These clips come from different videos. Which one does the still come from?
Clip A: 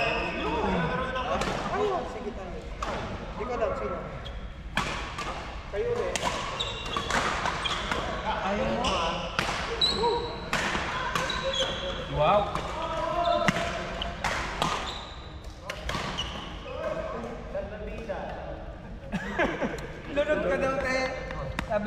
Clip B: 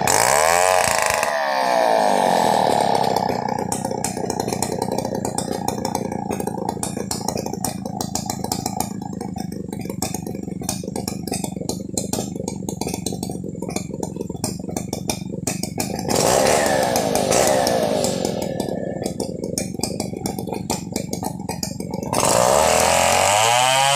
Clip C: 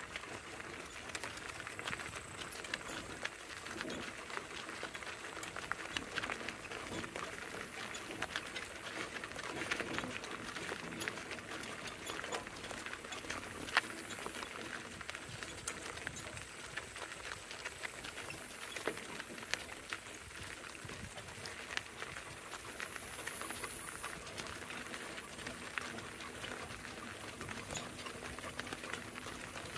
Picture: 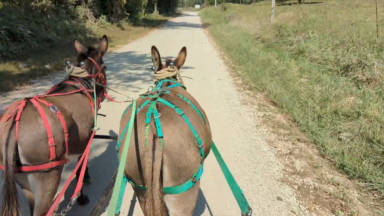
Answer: C